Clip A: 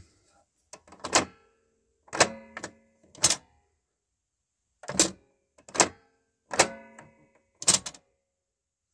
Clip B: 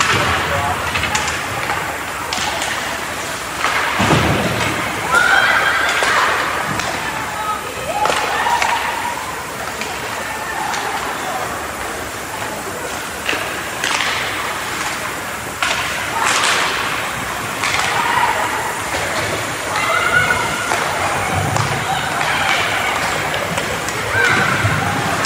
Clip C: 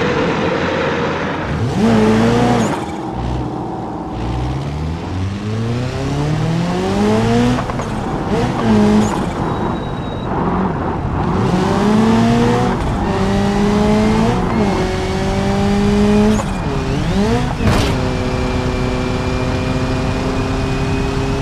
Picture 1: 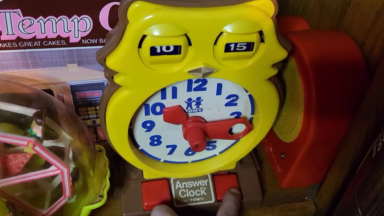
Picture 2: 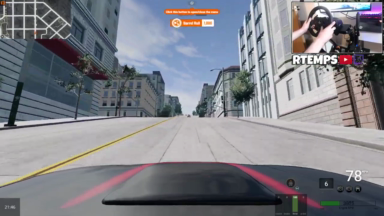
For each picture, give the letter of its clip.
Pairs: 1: A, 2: C